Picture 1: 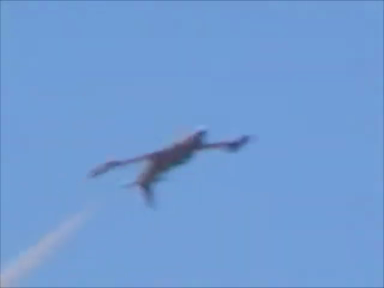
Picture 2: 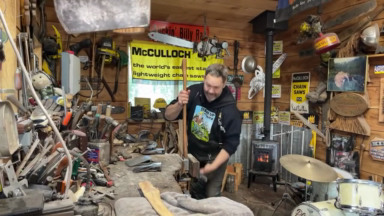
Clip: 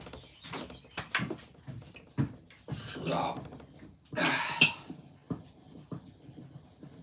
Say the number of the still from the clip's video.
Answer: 2